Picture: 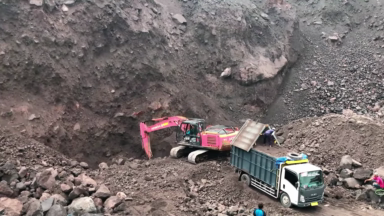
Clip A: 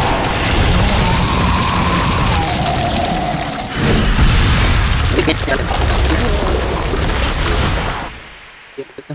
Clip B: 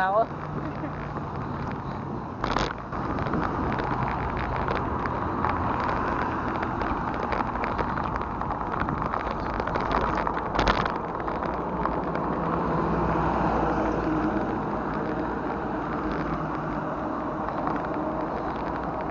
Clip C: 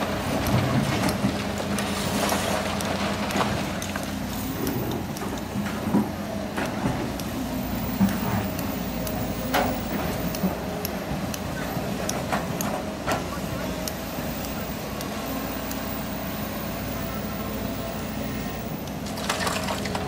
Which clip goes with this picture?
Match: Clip C